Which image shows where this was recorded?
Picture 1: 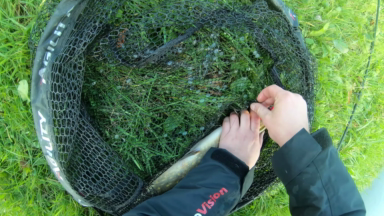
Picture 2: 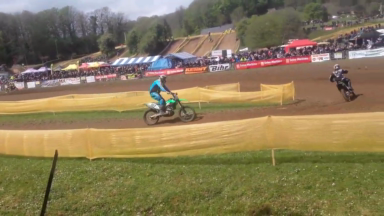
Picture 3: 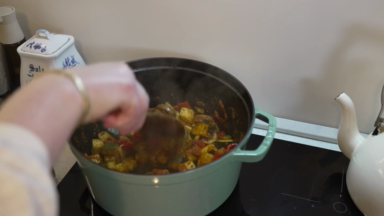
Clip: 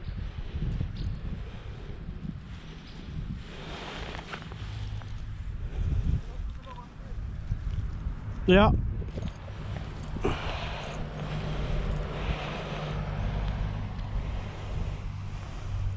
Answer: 1